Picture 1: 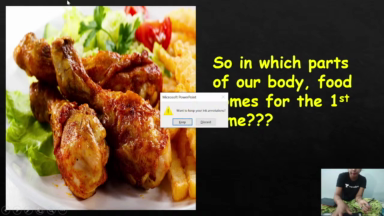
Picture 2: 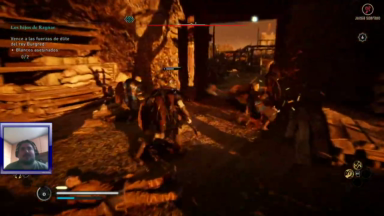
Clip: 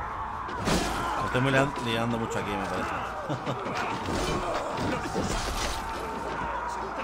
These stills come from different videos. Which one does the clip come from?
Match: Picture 2